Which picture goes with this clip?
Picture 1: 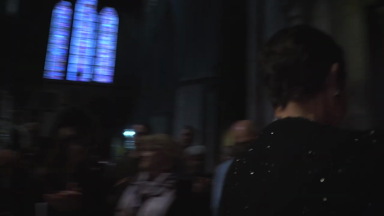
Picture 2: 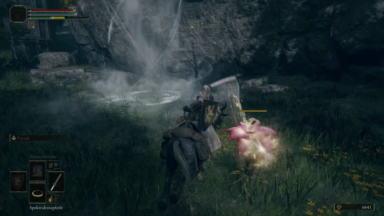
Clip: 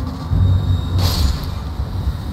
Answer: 2